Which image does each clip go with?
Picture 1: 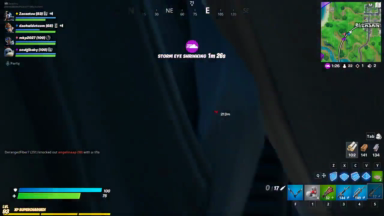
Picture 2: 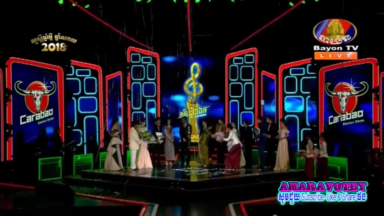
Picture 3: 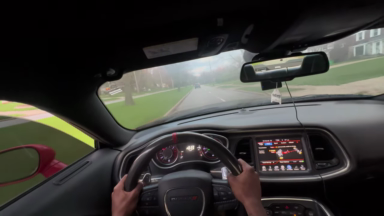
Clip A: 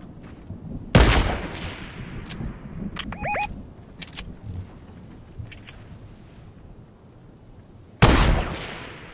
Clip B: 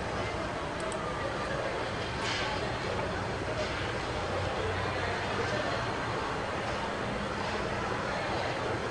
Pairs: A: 1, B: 2